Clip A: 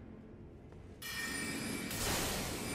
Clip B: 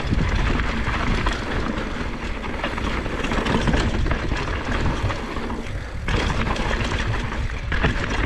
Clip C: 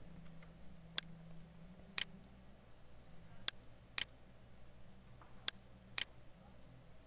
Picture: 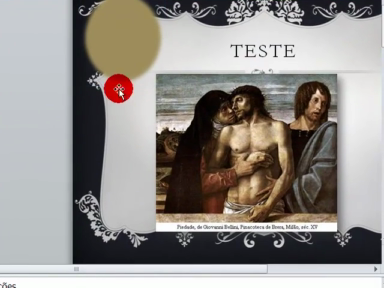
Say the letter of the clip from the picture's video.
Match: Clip C